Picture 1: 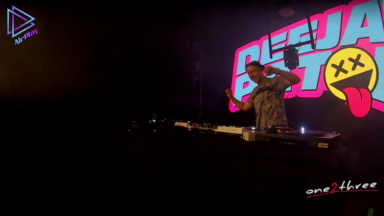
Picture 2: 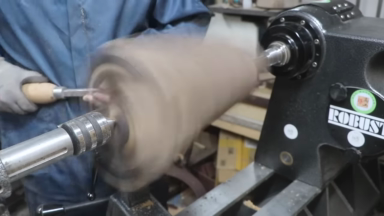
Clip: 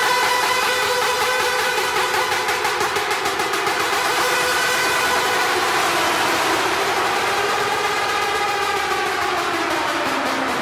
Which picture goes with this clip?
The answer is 1